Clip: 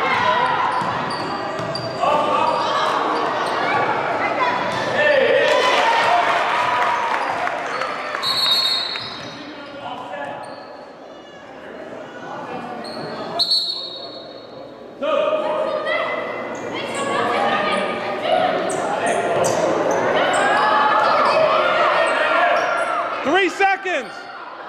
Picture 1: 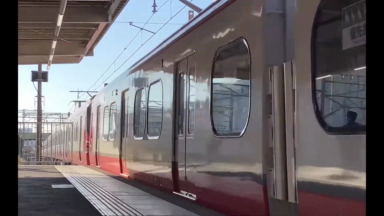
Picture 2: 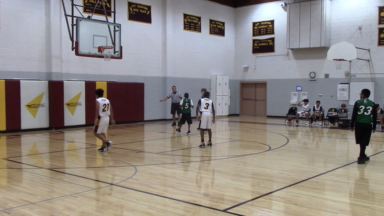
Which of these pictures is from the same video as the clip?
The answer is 2